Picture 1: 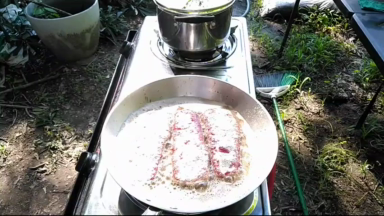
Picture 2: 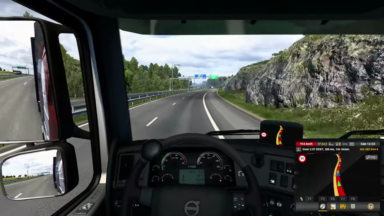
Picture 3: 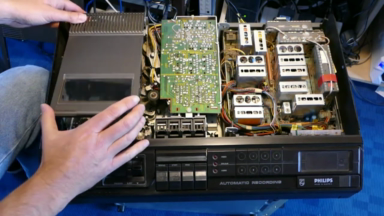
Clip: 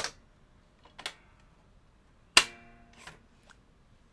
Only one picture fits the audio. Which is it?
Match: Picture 3